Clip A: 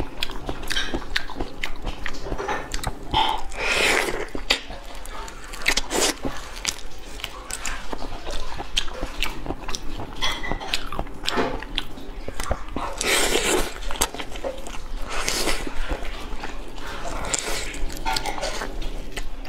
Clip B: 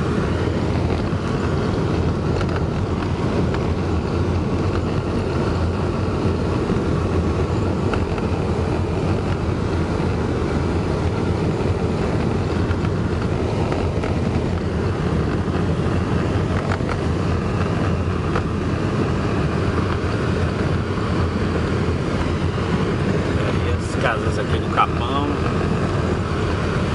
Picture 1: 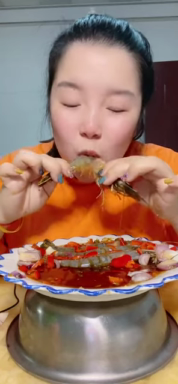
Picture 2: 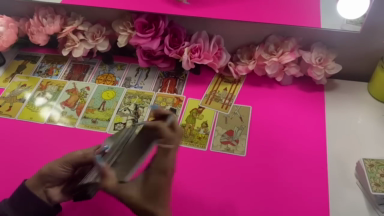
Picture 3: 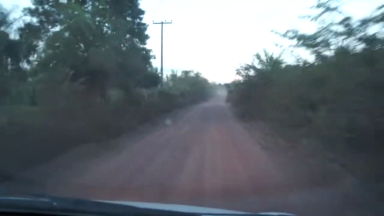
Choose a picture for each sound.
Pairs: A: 1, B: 3